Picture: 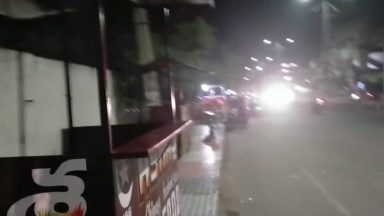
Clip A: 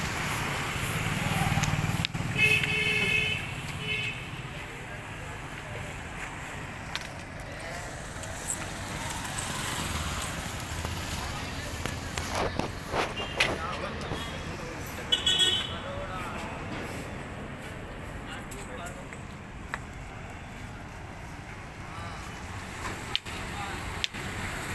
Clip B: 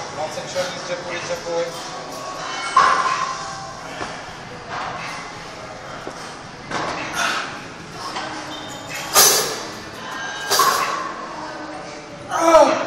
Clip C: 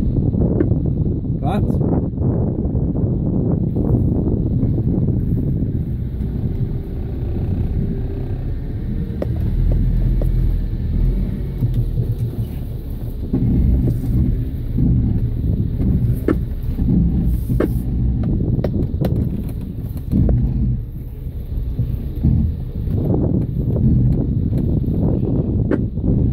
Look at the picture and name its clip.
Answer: A